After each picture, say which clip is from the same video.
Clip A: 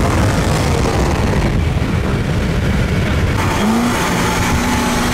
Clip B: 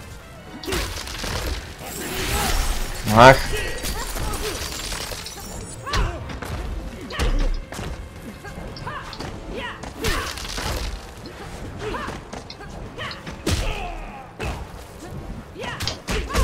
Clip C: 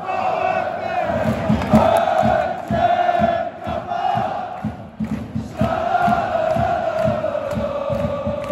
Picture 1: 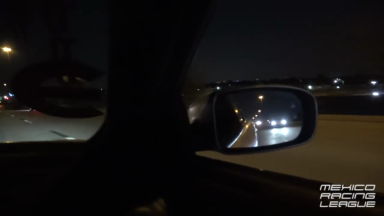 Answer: A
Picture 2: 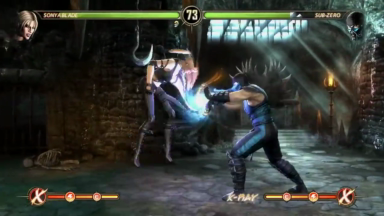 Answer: B